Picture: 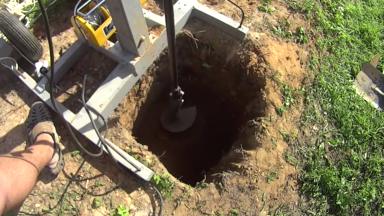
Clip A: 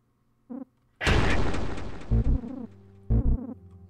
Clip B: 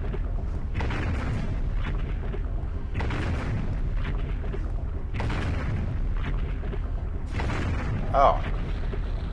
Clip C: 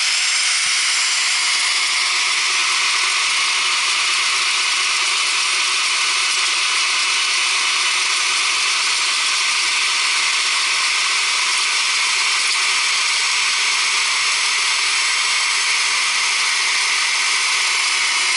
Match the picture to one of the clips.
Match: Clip C